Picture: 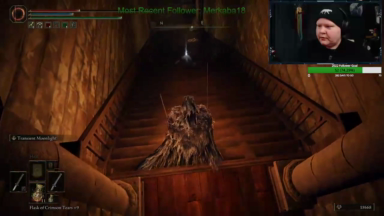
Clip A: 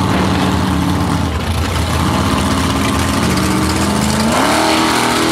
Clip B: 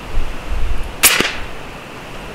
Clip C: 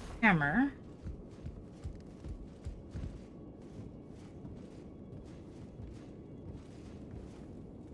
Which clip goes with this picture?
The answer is C